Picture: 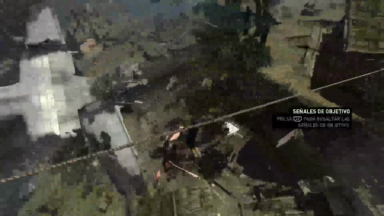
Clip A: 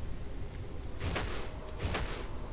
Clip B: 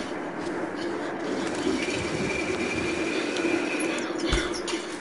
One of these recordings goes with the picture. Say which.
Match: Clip B